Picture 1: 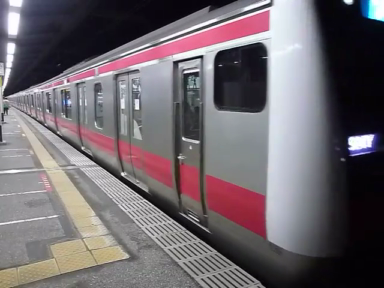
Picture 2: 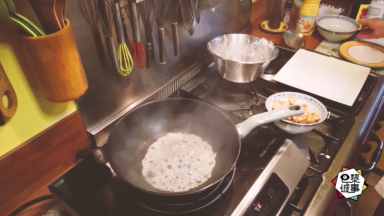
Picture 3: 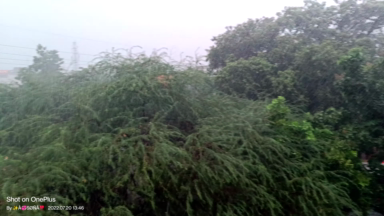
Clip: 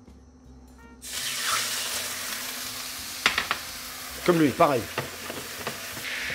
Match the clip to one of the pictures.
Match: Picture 2